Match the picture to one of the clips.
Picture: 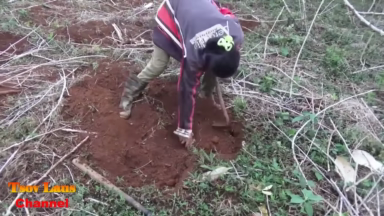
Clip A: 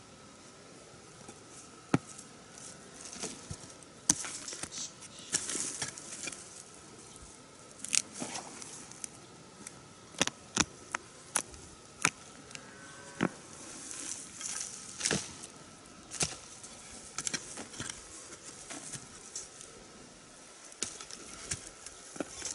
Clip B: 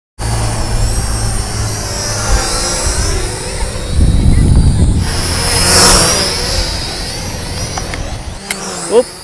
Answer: A